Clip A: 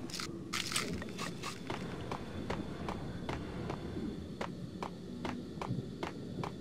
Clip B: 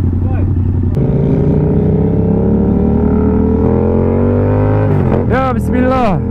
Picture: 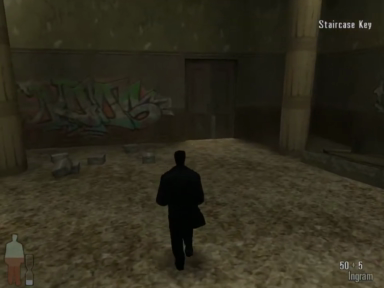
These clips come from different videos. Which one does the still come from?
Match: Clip A